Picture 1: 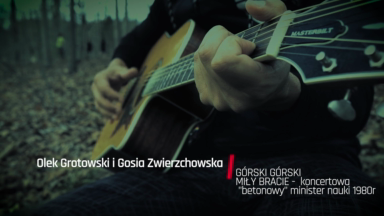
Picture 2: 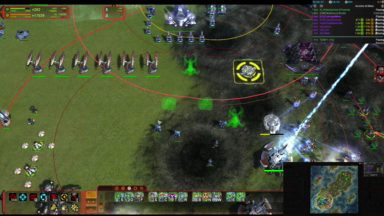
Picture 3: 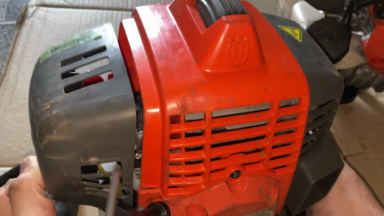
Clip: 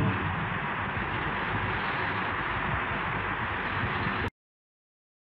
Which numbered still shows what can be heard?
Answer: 1